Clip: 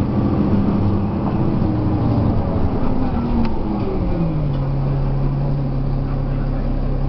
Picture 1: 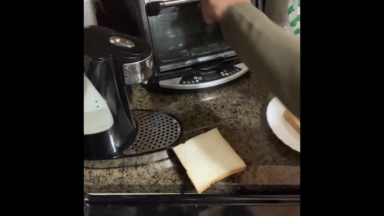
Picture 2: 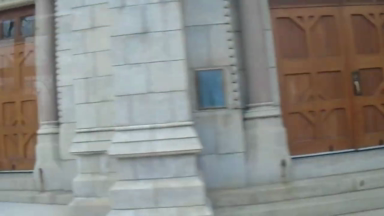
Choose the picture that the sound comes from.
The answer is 2